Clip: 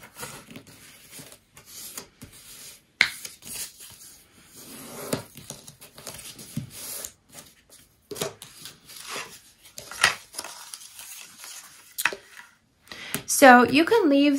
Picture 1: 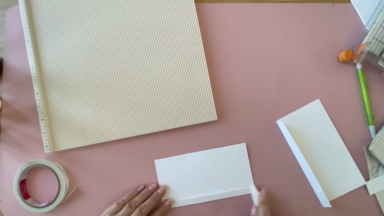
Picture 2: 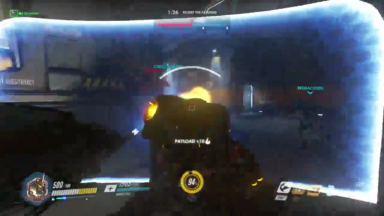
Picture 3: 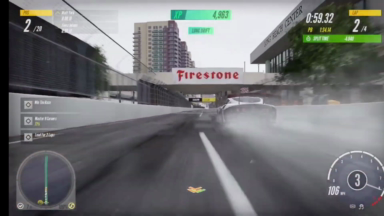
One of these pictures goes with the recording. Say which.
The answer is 1